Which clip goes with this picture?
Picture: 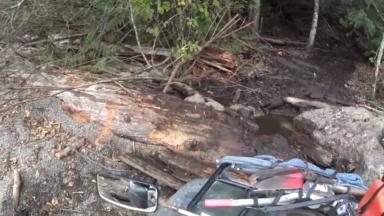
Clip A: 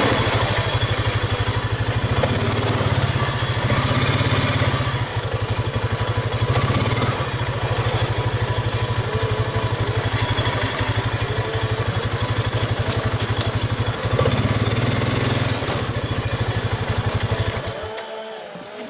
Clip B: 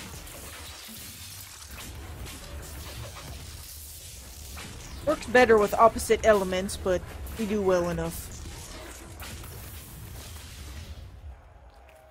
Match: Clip A